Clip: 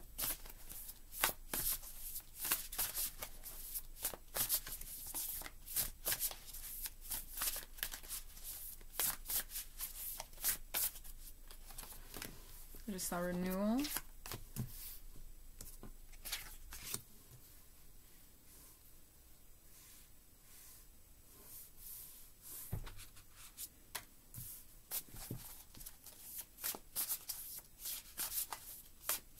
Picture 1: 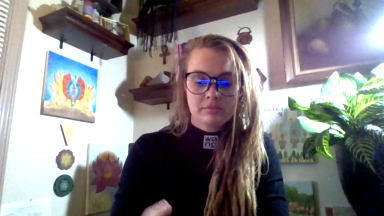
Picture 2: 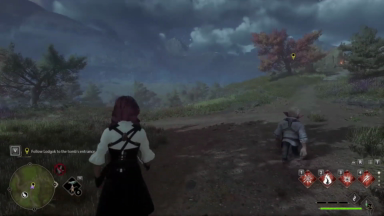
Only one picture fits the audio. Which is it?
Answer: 1